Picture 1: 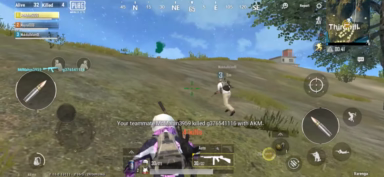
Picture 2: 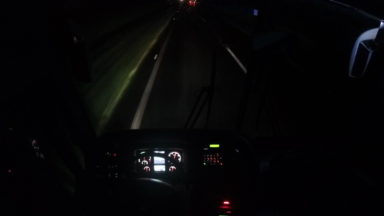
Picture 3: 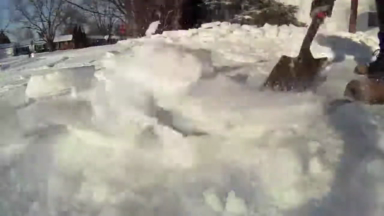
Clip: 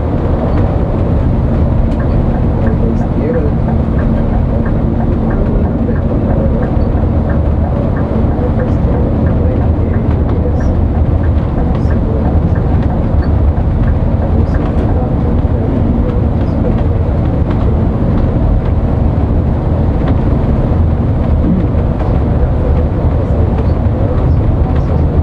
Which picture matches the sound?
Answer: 2